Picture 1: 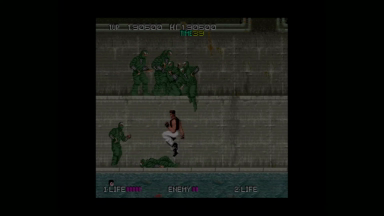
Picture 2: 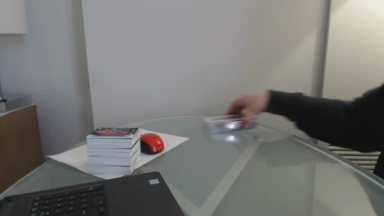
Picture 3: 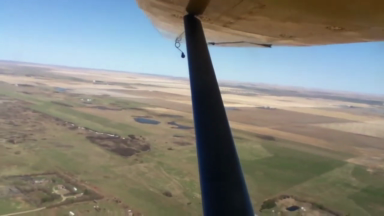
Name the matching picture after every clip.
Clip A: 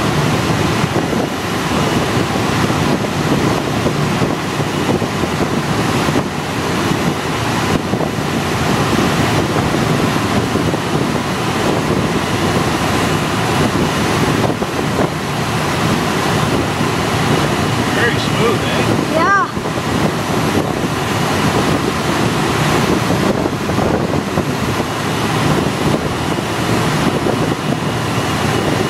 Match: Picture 3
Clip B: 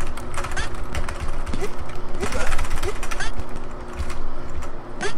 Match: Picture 1